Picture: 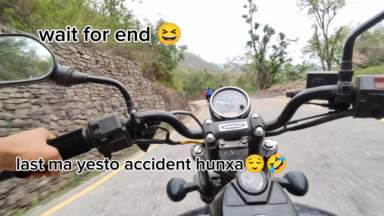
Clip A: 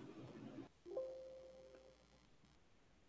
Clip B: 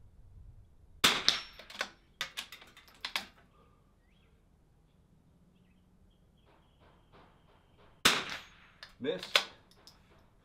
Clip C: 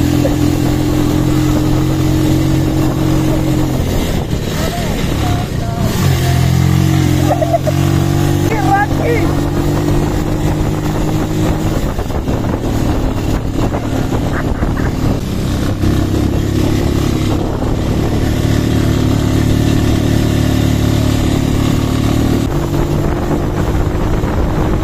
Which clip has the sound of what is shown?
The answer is C